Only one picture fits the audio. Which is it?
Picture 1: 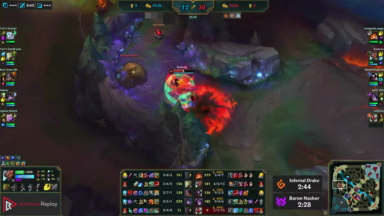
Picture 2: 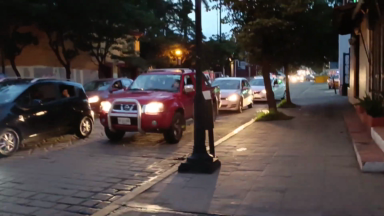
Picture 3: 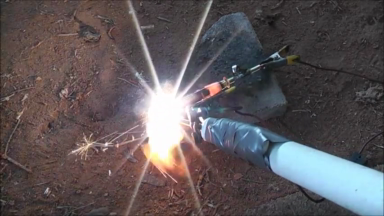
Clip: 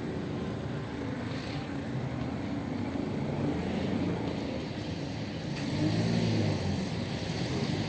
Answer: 2